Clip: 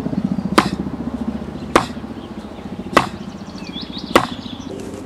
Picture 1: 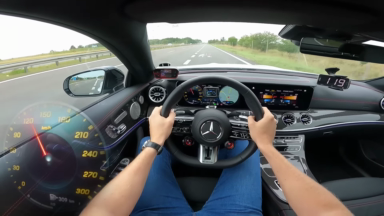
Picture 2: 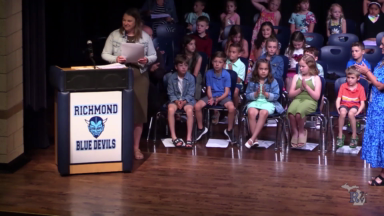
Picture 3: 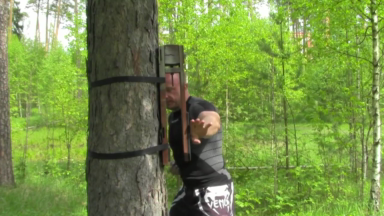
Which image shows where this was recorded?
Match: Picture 3